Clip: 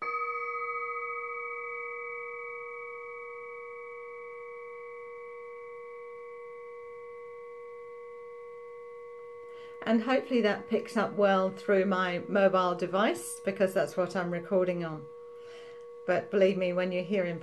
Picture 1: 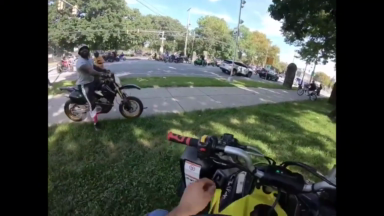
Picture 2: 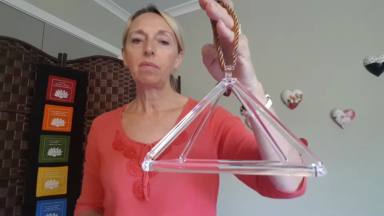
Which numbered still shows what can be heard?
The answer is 2